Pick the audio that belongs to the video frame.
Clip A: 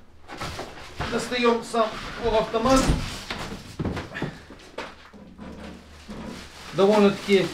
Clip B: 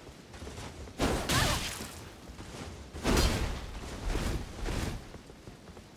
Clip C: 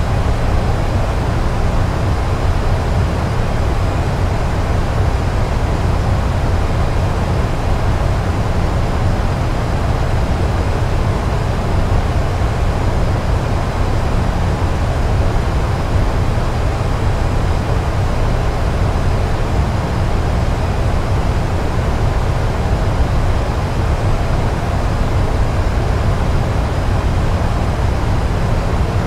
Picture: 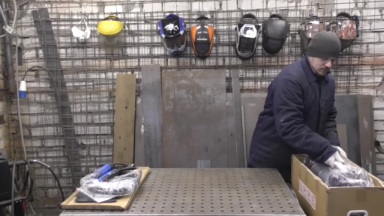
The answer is A